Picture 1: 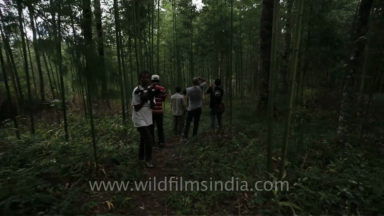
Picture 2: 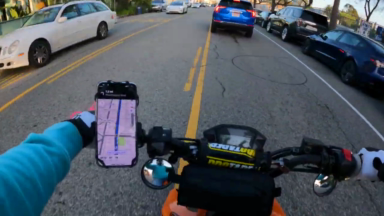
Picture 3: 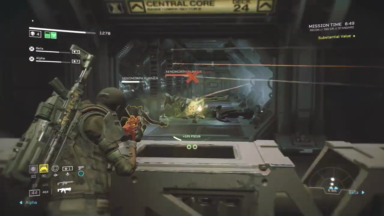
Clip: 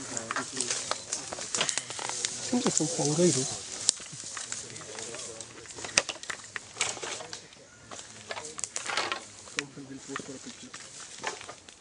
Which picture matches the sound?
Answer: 1